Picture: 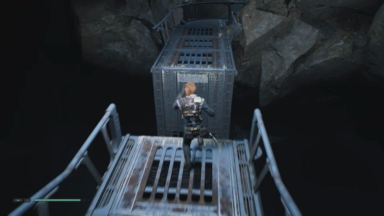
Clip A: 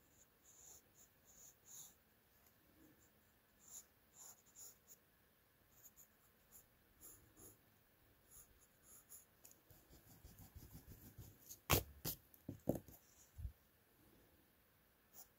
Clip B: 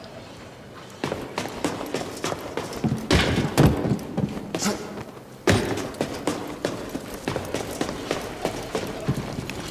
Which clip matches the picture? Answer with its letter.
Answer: B